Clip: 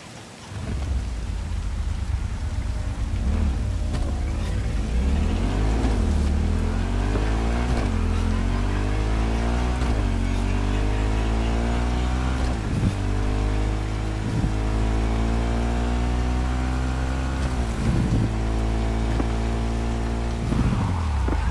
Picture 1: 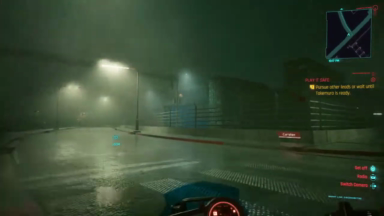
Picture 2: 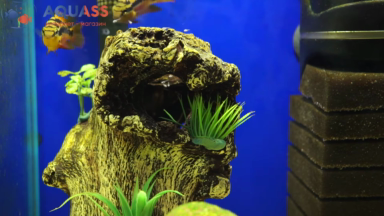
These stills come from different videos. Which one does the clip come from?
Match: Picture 1